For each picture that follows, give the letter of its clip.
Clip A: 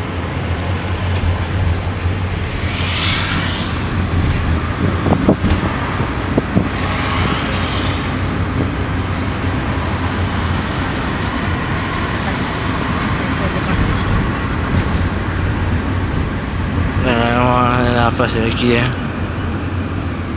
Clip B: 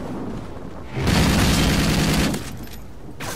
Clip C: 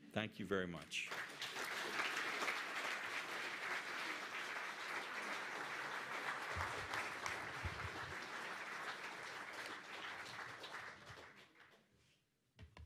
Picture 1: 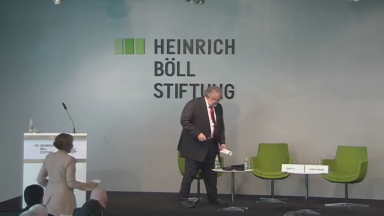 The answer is C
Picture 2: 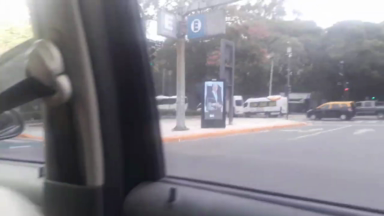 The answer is A